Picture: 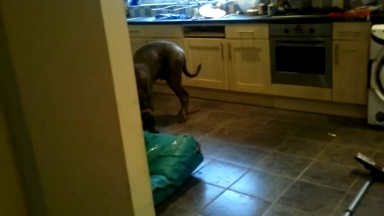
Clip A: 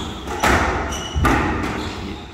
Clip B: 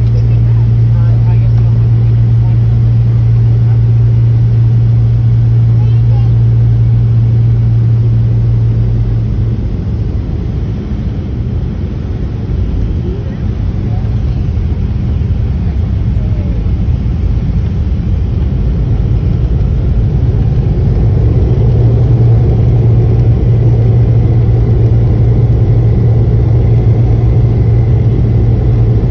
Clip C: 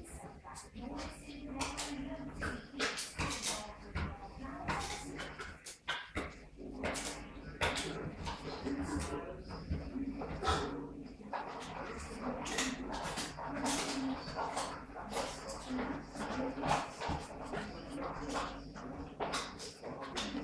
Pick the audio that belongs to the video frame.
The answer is C